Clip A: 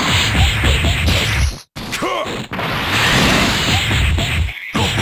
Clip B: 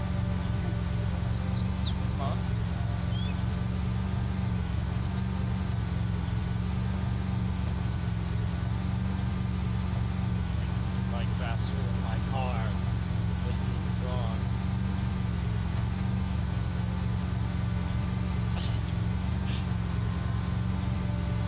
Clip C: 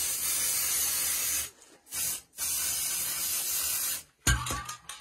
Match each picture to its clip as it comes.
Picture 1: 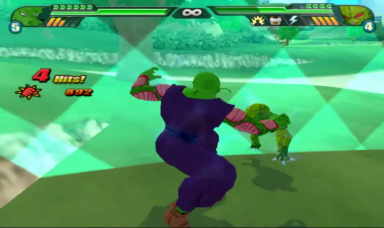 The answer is A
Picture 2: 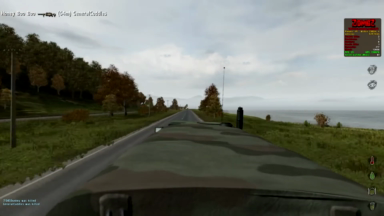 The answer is B